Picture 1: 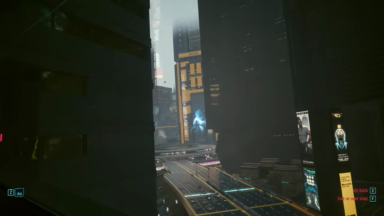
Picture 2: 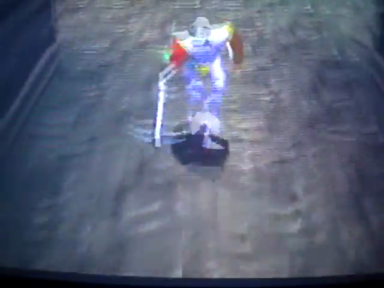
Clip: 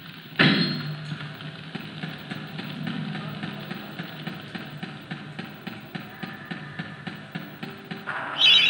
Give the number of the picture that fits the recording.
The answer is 2